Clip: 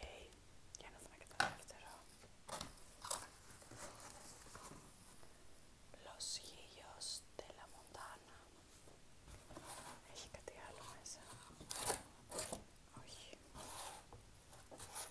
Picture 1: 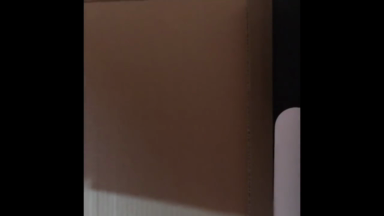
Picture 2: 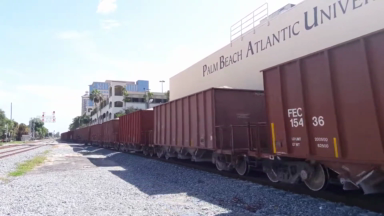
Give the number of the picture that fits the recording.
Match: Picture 1